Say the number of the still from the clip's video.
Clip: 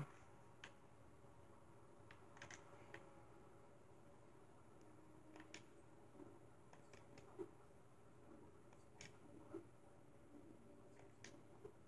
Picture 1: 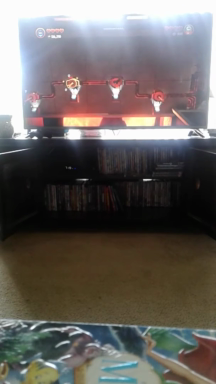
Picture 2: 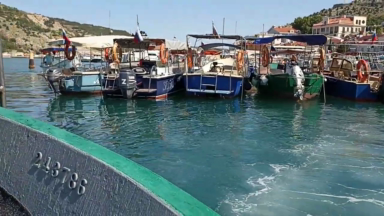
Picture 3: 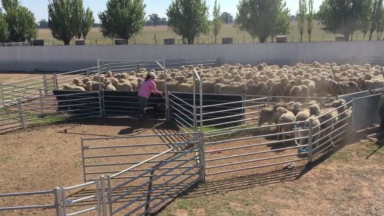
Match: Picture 1